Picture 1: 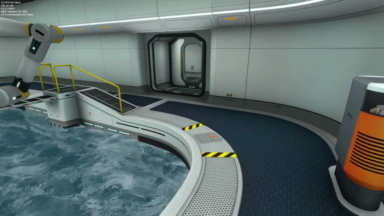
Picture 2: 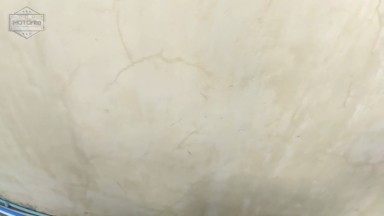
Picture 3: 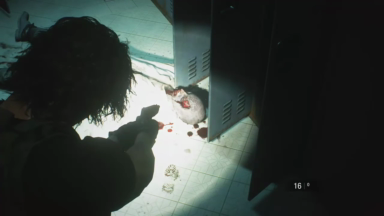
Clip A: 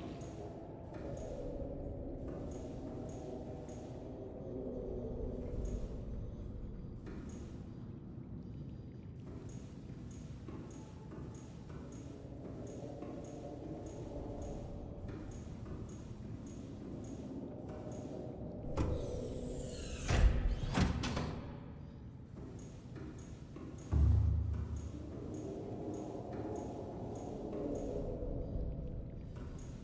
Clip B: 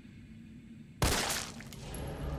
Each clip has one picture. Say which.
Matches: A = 1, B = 3